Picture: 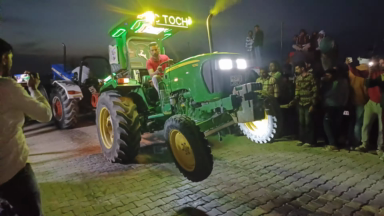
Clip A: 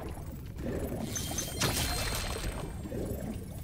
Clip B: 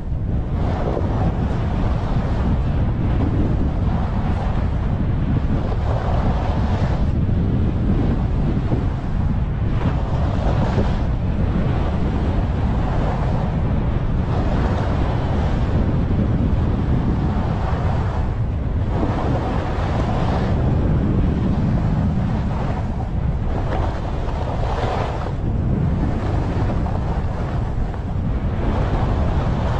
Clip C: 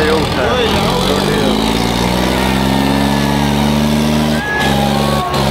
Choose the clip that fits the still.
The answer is C